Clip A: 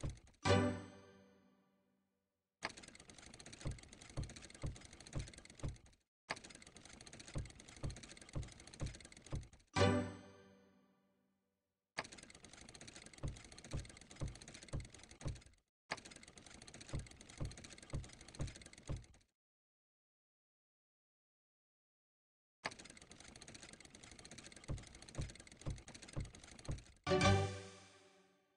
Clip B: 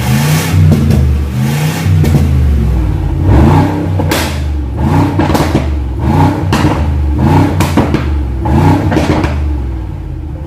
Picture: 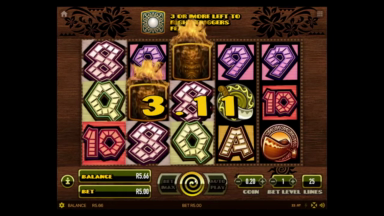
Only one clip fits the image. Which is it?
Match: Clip A